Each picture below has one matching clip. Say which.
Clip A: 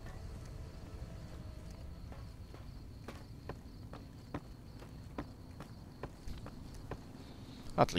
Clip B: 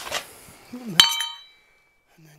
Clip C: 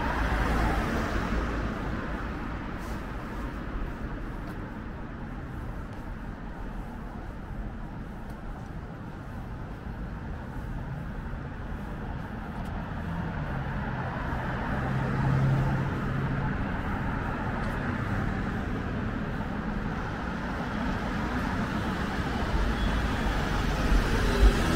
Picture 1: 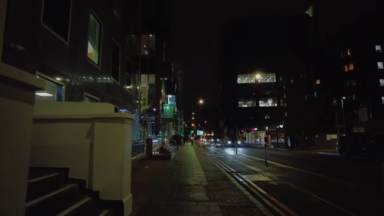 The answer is C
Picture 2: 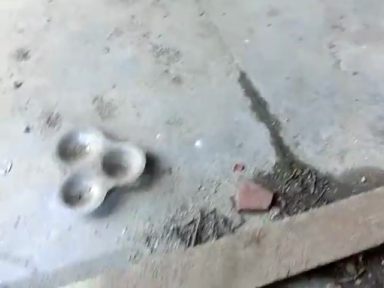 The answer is B